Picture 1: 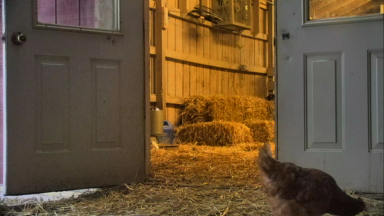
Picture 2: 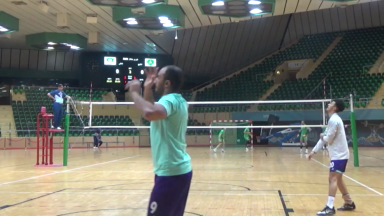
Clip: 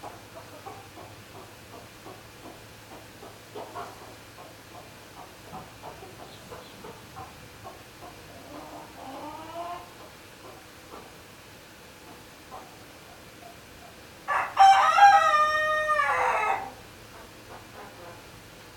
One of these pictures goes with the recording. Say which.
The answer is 1